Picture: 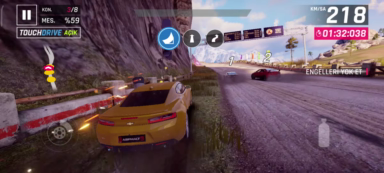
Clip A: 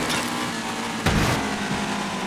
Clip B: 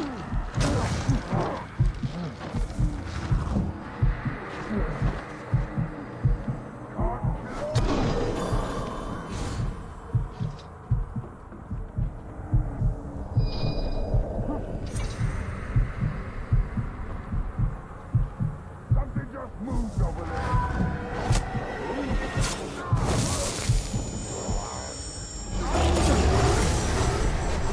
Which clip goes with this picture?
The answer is A